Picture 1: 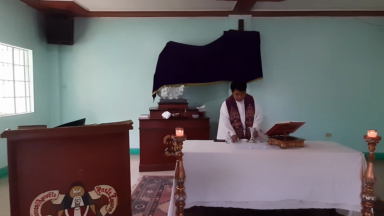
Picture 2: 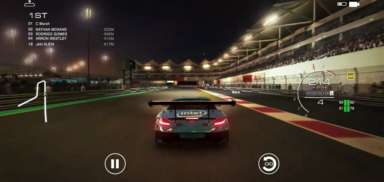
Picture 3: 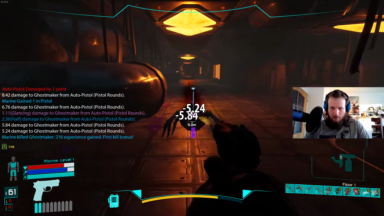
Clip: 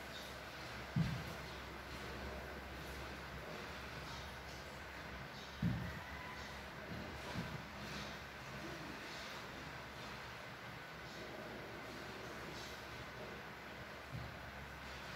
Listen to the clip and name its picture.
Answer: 1